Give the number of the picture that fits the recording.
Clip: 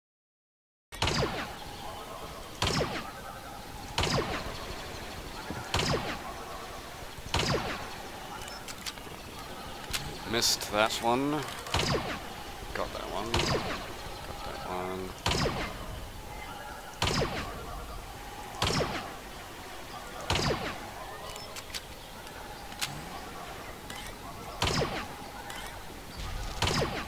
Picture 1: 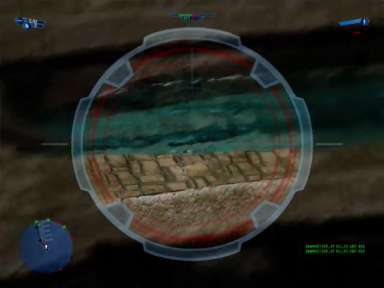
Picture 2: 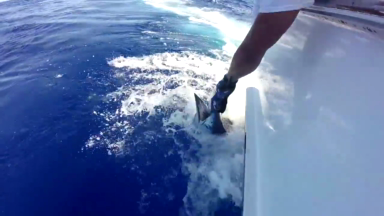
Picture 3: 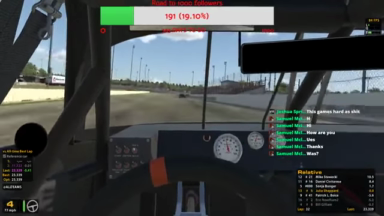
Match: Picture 1